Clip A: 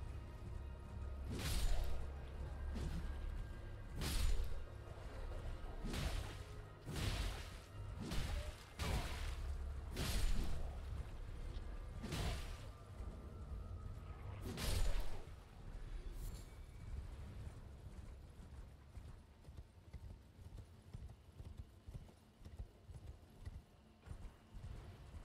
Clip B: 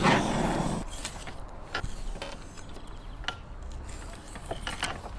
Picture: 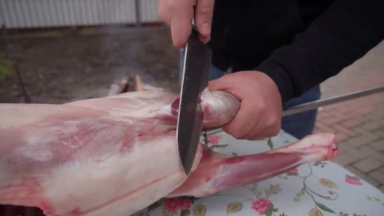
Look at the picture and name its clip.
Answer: B